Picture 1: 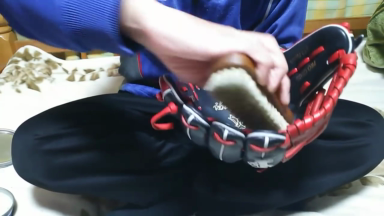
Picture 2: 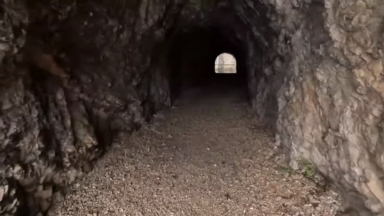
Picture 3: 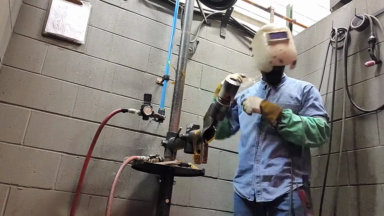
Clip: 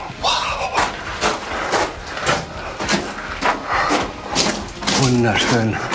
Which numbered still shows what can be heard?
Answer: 2